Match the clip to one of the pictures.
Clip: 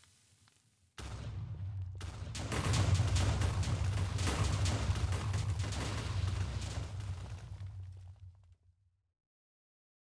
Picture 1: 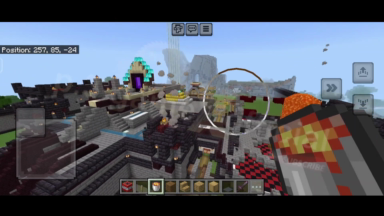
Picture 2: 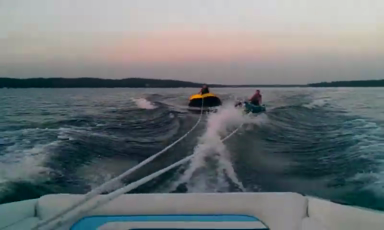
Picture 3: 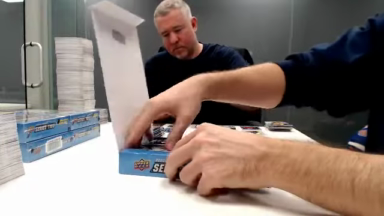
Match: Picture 1